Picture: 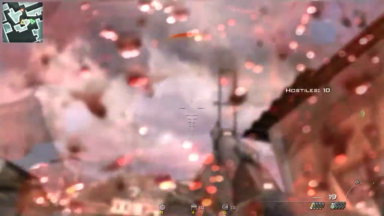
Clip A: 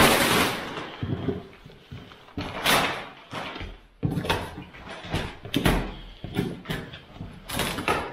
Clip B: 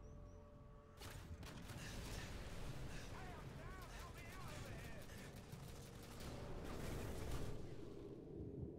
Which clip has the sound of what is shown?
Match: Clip B